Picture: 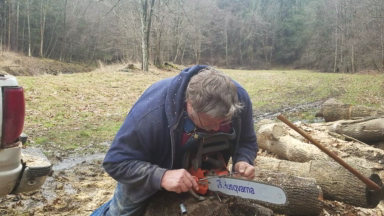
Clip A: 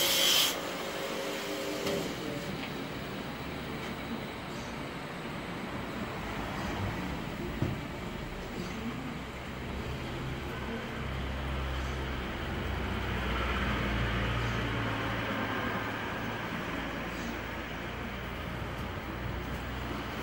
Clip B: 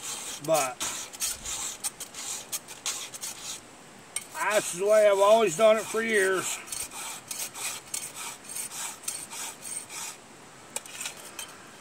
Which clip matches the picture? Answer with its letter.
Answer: B